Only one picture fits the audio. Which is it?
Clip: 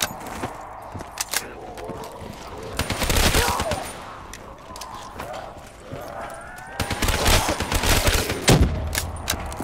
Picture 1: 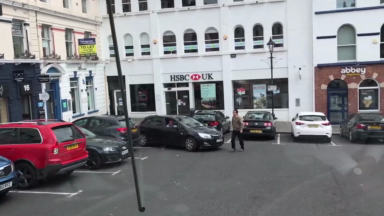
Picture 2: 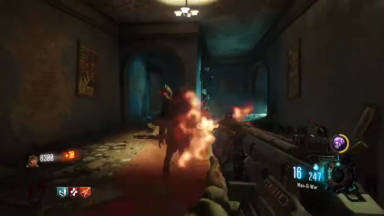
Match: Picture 2